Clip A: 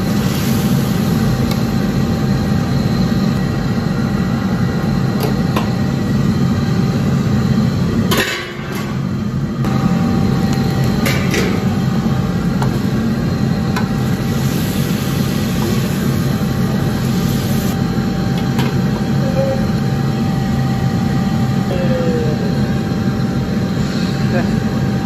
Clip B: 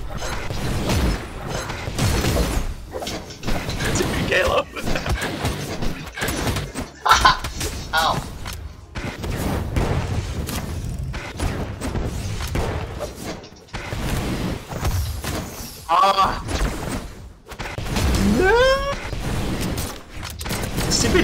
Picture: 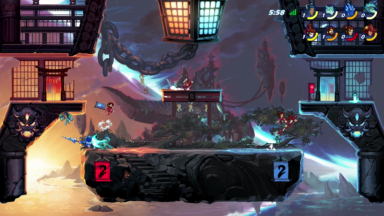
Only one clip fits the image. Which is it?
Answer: B